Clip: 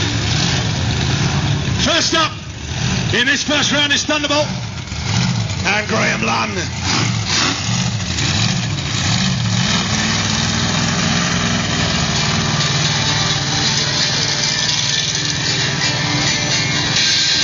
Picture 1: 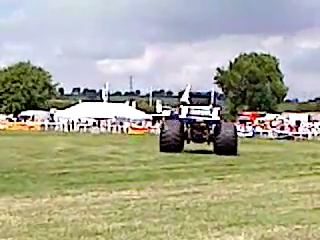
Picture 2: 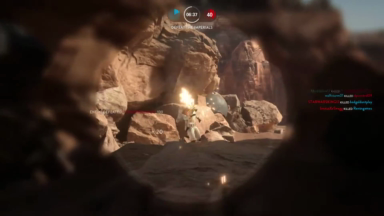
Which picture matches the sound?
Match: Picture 1